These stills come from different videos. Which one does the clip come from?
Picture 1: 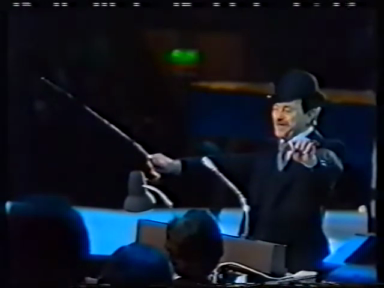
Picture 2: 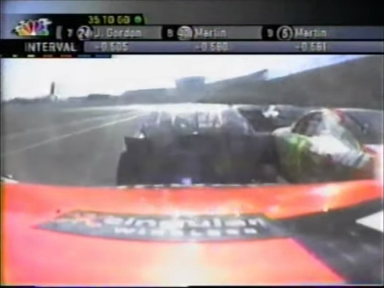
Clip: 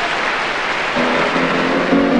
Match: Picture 1